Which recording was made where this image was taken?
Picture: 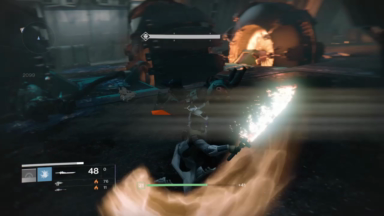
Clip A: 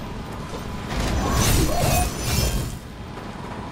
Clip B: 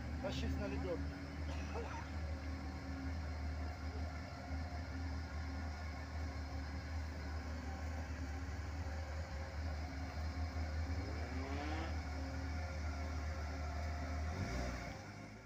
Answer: A